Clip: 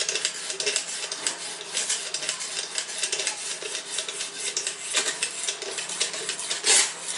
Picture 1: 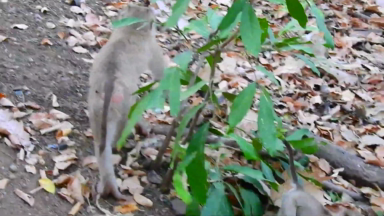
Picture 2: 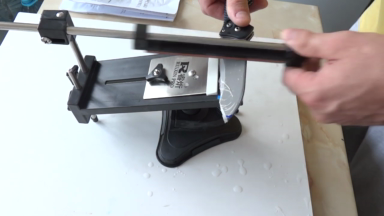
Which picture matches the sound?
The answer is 2